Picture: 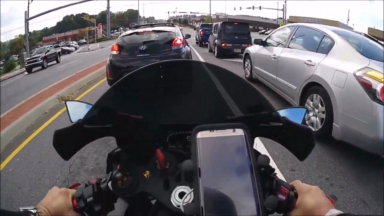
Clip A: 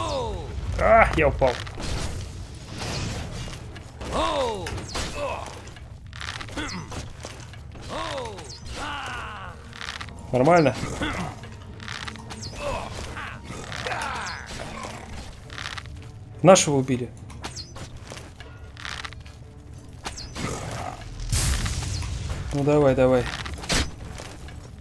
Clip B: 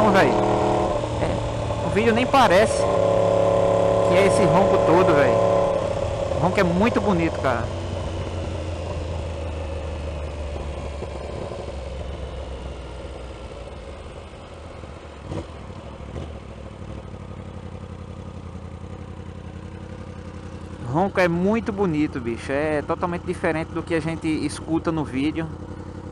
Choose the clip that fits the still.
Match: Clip B